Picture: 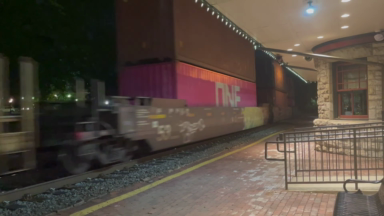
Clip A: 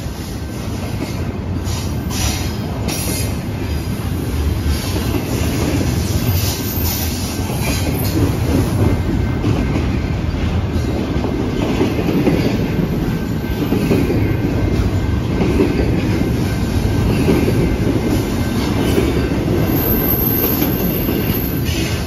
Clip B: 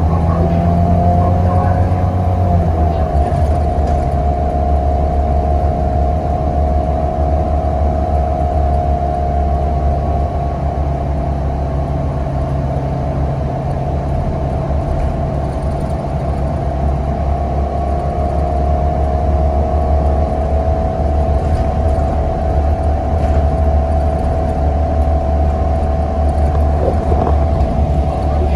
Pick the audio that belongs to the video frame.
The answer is A